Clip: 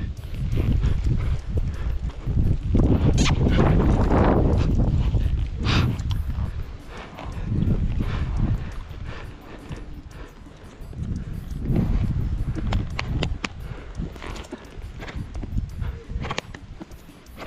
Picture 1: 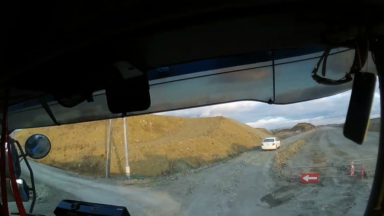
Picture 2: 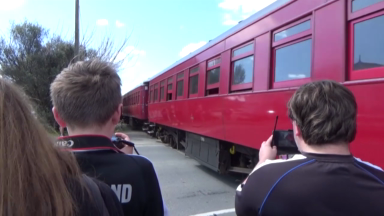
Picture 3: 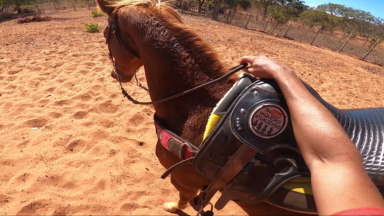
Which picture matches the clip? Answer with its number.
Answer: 3